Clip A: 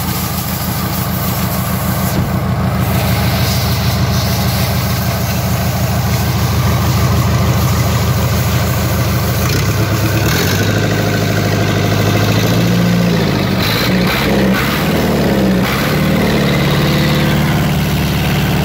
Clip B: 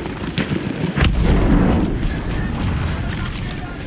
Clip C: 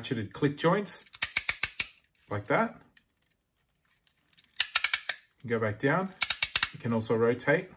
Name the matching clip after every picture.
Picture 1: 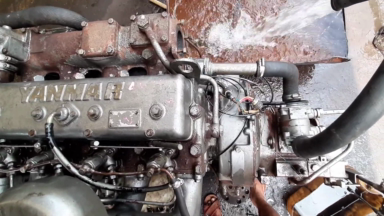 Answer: A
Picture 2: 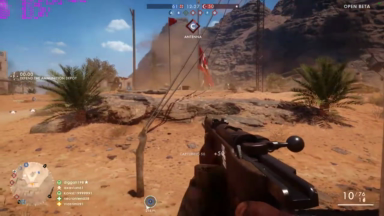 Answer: B